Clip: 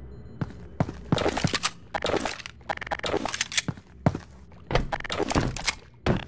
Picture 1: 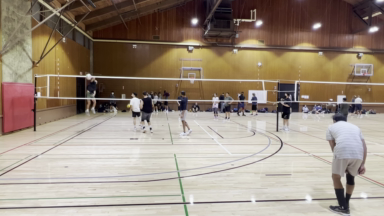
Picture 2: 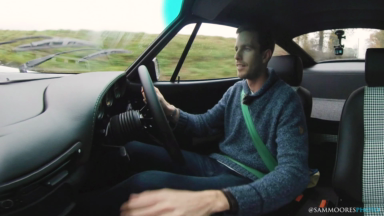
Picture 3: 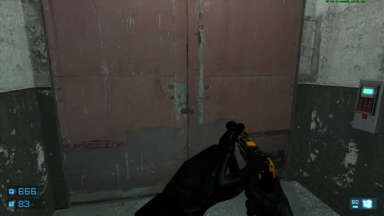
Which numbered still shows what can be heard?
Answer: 3